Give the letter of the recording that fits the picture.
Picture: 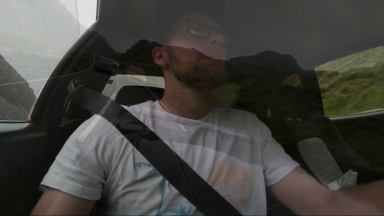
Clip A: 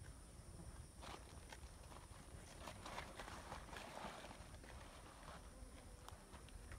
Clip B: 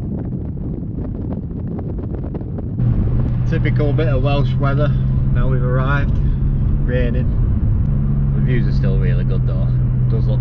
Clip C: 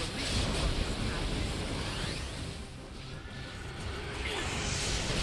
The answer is B